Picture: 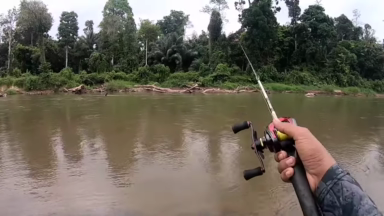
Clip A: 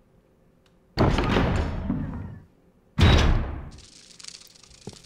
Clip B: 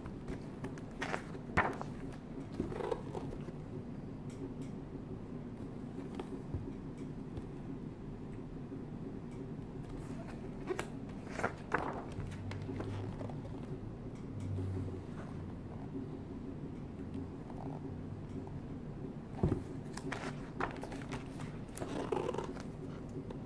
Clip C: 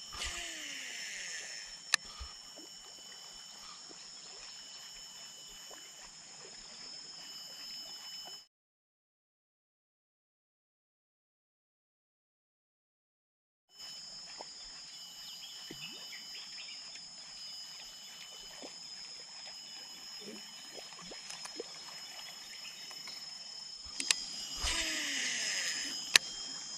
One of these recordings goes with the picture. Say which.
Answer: C